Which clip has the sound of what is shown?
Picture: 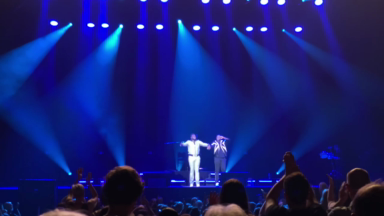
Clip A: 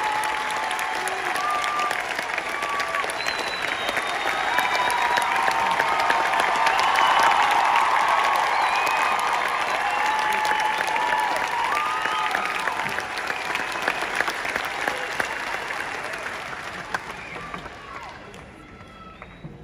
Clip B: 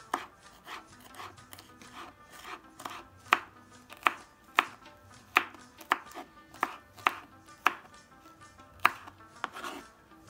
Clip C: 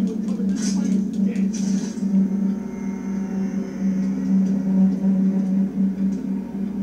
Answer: A